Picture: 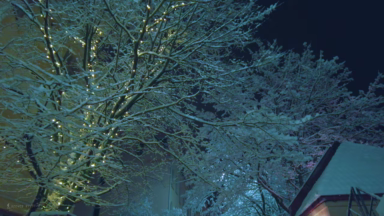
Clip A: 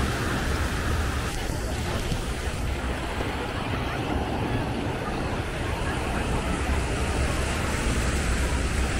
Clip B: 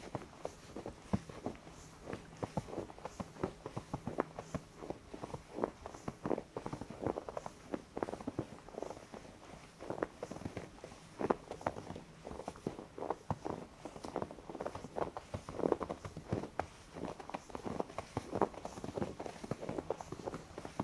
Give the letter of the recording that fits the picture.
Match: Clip B